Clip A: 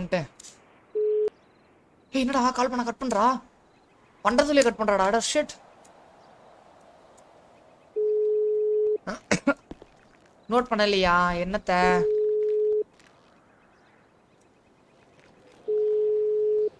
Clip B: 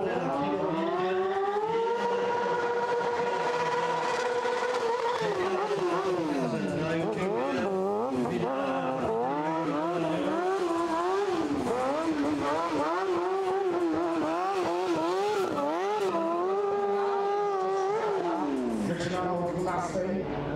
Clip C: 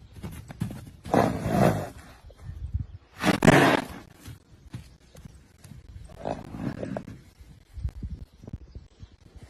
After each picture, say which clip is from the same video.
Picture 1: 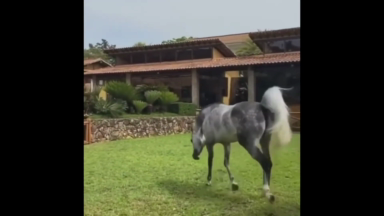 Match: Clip C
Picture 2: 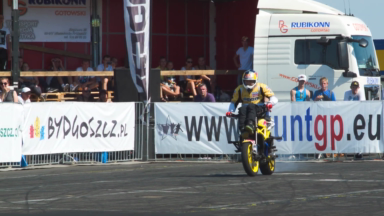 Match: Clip B